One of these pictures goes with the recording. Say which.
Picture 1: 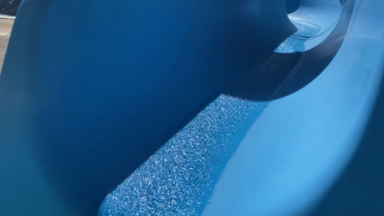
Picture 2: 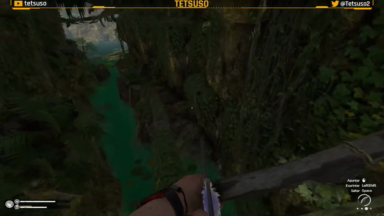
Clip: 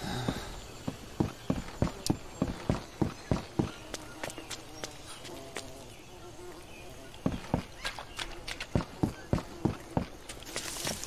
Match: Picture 2